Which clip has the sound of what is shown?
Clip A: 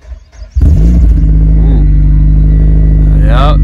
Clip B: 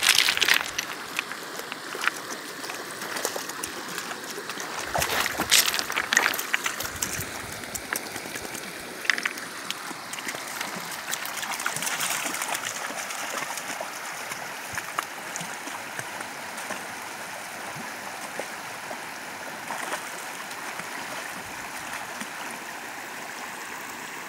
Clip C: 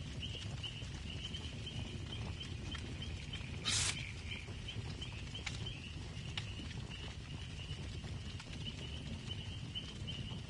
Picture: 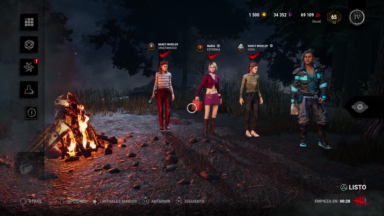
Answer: C